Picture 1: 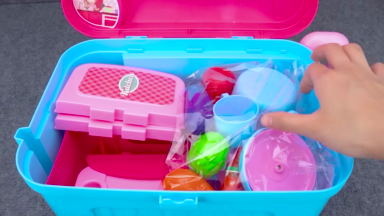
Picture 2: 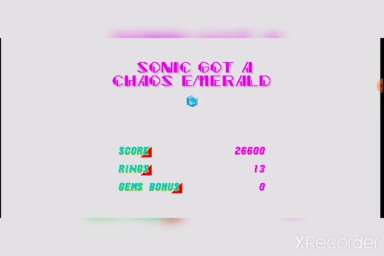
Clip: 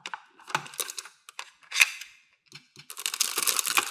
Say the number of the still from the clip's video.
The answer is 1